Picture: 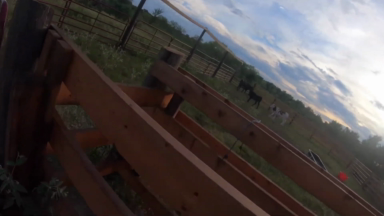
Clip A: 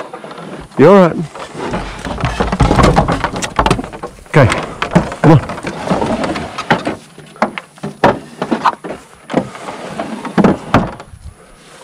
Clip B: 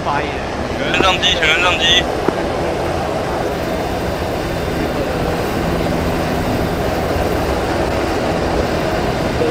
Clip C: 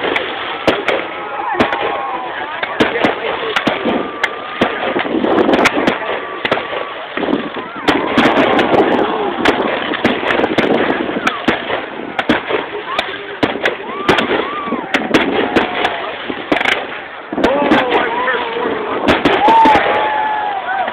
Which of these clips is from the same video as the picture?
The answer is A